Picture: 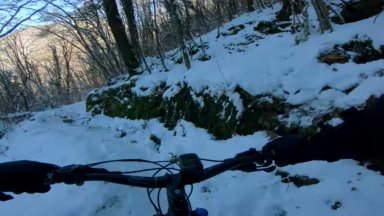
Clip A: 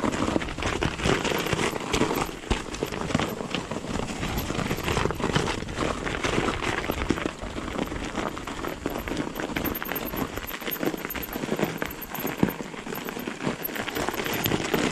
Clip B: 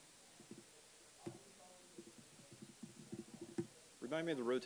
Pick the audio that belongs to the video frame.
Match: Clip A